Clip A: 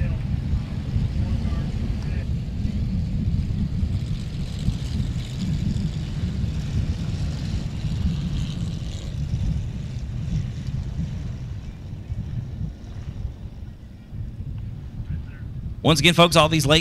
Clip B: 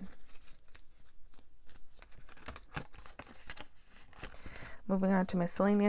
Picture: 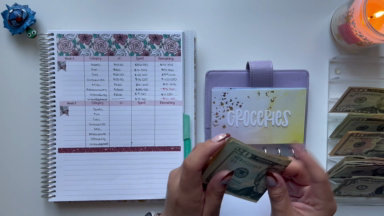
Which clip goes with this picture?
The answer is B